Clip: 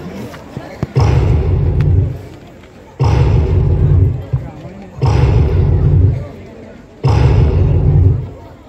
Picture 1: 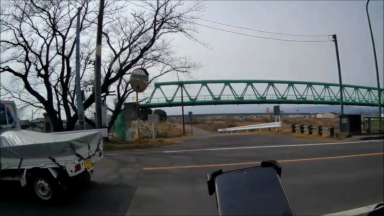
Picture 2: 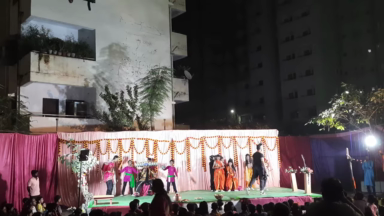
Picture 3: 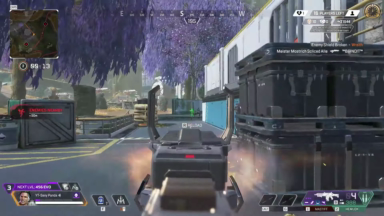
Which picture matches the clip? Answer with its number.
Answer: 2